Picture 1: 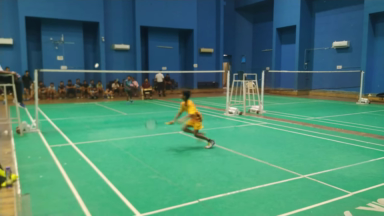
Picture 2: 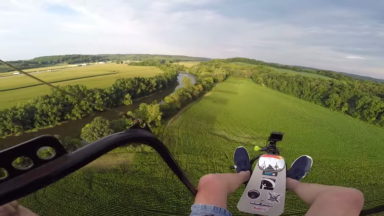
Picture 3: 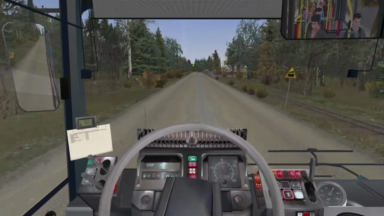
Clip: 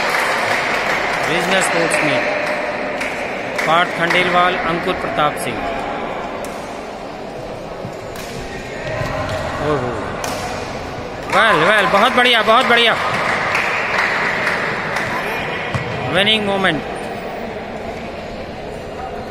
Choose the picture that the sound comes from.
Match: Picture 1